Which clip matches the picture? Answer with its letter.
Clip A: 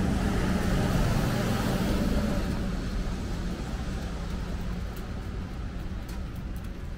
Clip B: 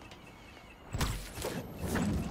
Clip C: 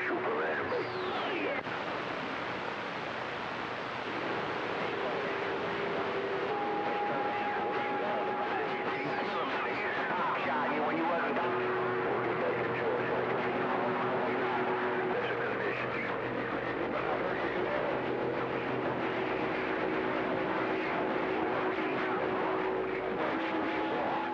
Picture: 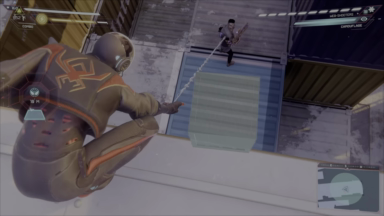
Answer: B